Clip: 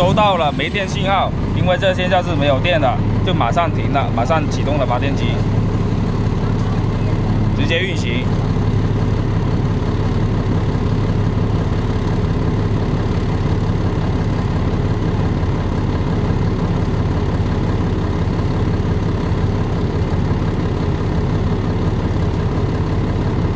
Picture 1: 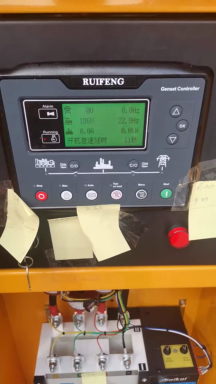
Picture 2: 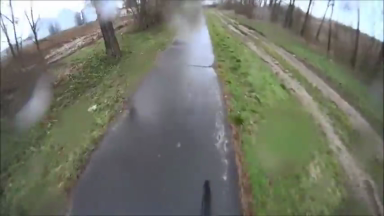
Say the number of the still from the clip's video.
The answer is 1